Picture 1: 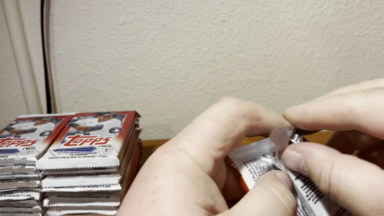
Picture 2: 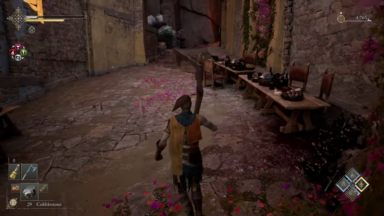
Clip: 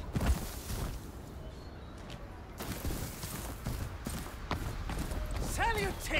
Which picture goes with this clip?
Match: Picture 2